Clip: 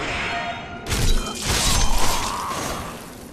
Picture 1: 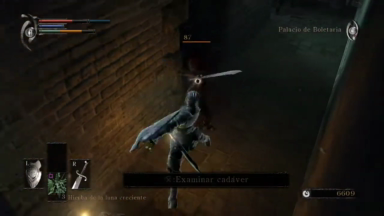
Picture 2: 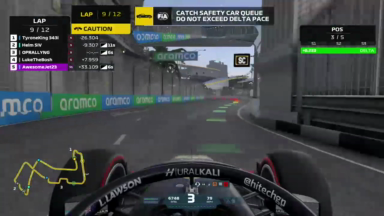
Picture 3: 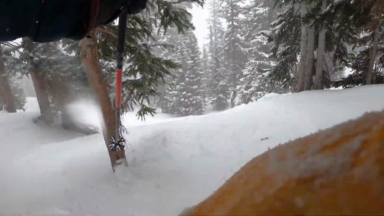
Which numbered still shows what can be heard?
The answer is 1